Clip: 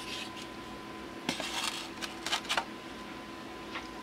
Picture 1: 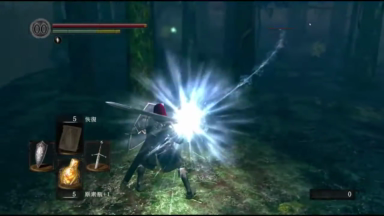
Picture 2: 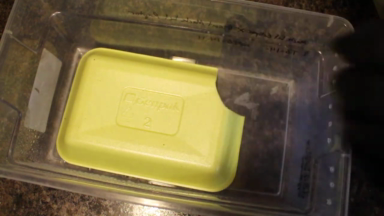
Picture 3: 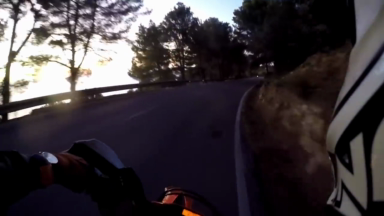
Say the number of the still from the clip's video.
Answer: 2